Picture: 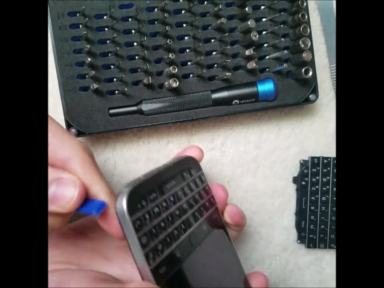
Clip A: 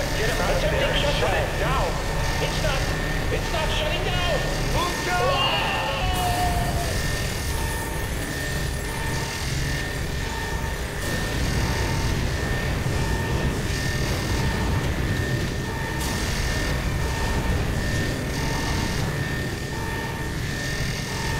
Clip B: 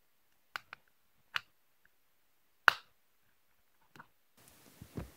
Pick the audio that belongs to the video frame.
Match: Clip B